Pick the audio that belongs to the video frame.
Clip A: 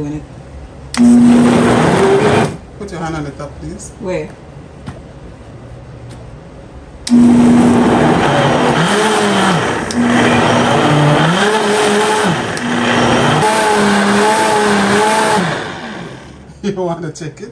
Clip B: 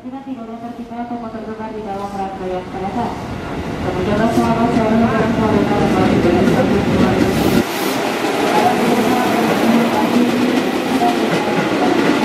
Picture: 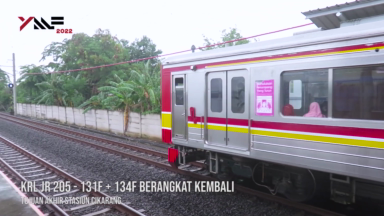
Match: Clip B